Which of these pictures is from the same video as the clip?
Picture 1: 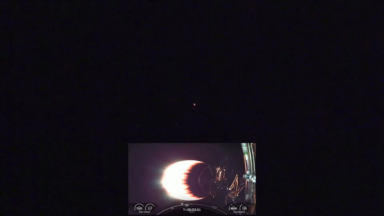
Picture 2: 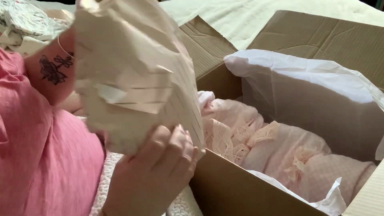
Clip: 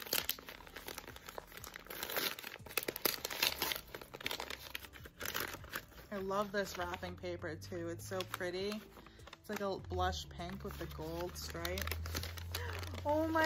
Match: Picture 2